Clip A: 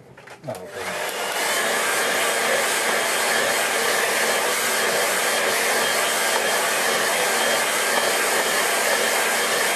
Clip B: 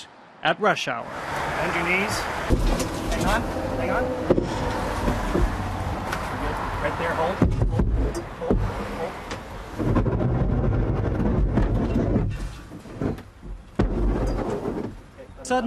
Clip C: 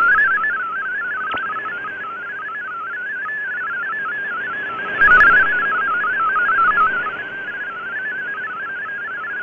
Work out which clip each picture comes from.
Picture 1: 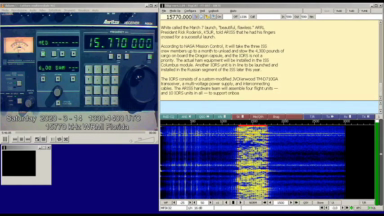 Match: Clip C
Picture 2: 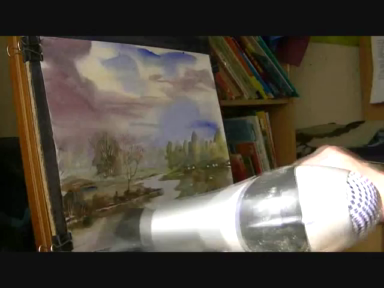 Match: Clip A